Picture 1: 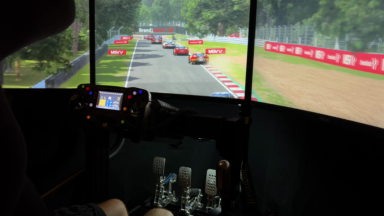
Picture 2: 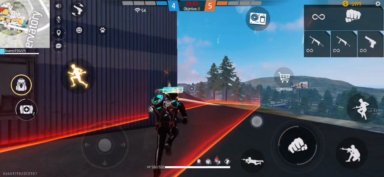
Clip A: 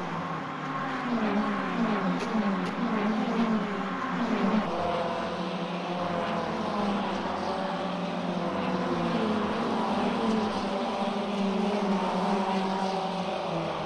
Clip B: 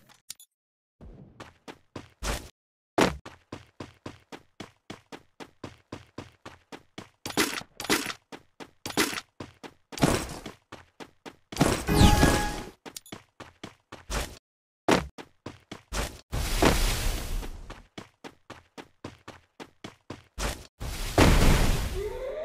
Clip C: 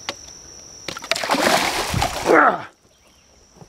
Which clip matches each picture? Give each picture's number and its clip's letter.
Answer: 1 A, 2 B